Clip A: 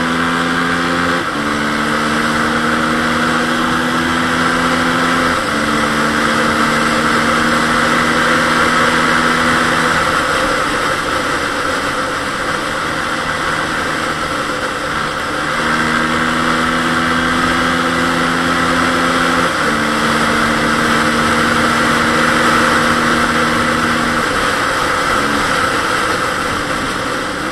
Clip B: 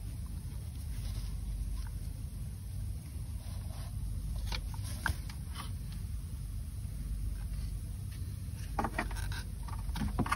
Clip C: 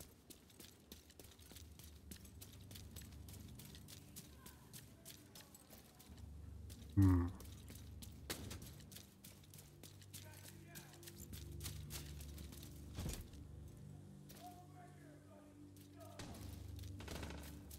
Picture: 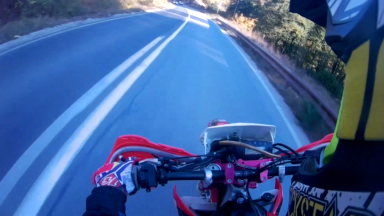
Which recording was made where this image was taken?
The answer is A